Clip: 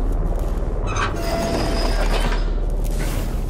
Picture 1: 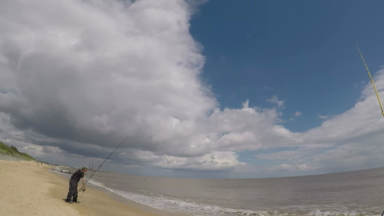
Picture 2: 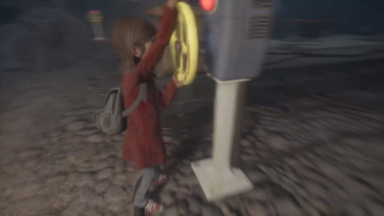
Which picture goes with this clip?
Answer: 2